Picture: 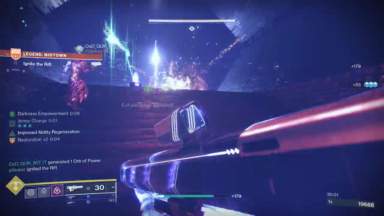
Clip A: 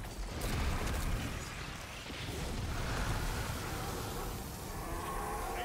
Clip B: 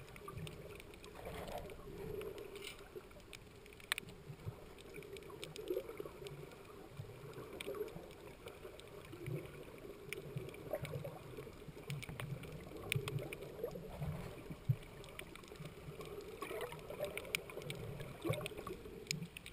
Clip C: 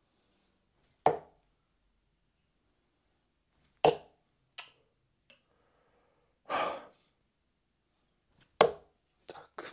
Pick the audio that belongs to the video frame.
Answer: A